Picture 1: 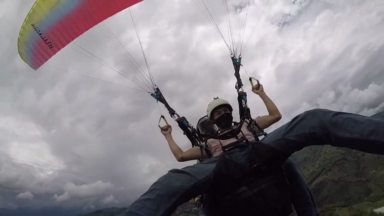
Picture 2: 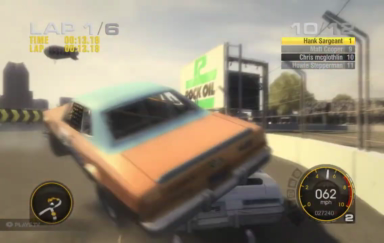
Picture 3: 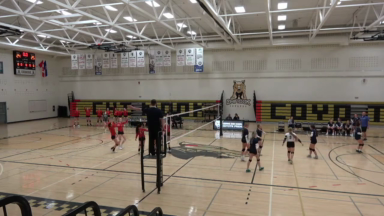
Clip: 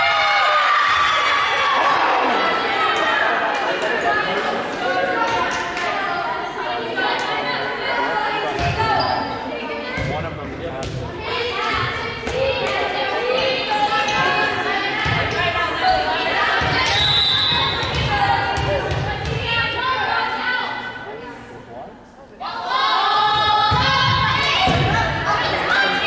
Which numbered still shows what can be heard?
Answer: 3